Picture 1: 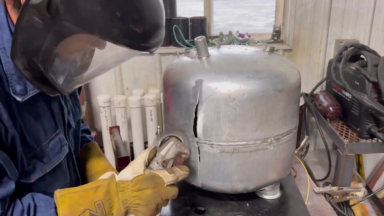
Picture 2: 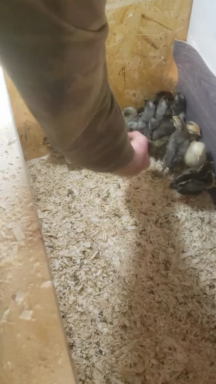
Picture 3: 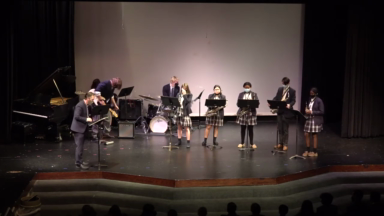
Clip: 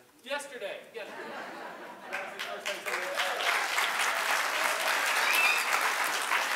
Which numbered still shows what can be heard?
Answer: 3